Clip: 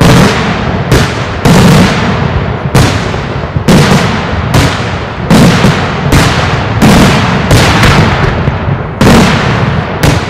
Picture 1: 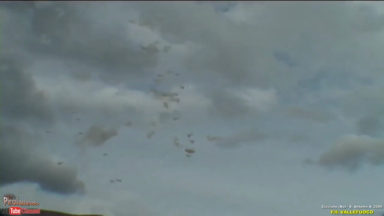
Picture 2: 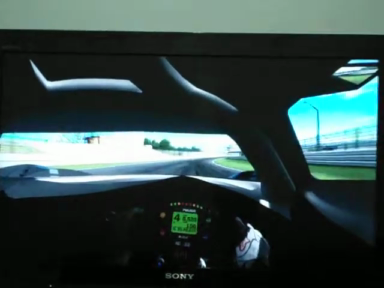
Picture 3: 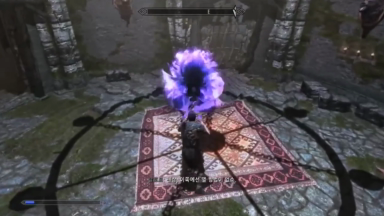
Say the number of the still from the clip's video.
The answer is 1